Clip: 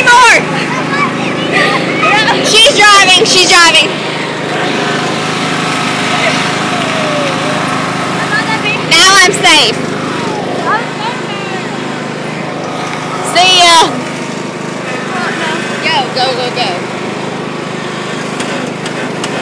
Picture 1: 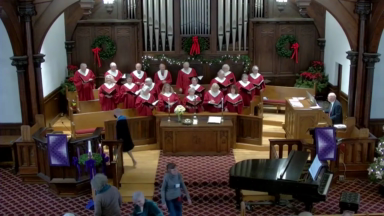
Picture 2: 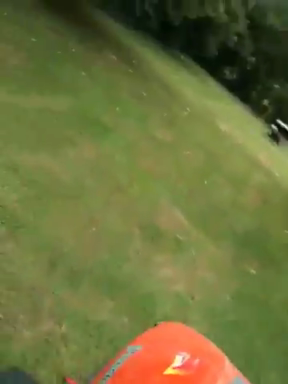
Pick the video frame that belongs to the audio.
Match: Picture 2